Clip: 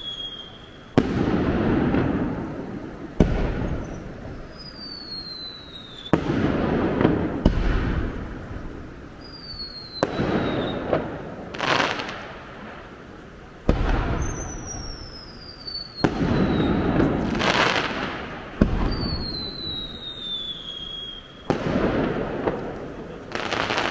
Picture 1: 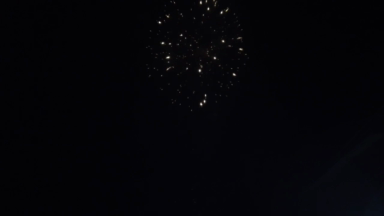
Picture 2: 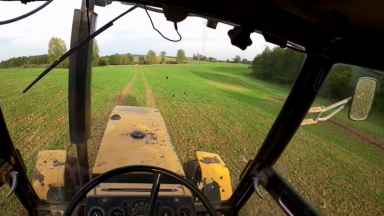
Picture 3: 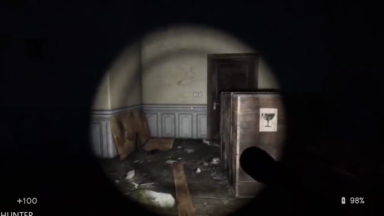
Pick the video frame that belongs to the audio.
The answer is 1